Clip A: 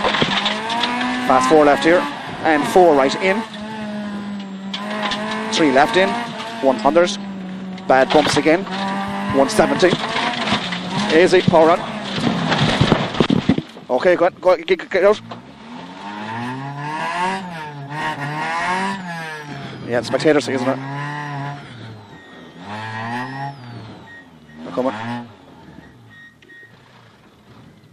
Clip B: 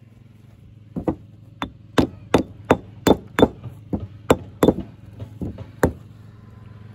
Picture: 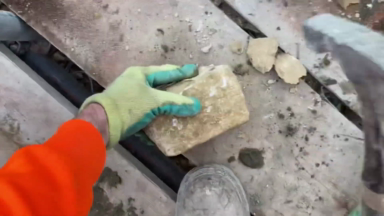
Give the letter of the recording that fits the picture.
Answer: B